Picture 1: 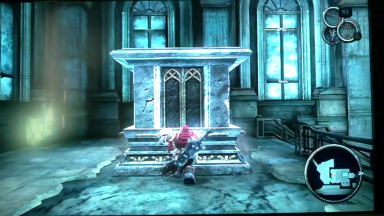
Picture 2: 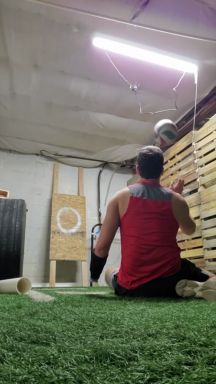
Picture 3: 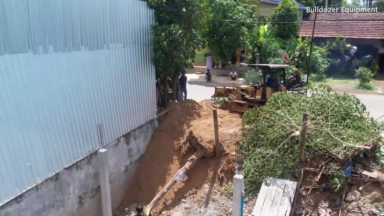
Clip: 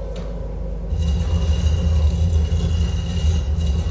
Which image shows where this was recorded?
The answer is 1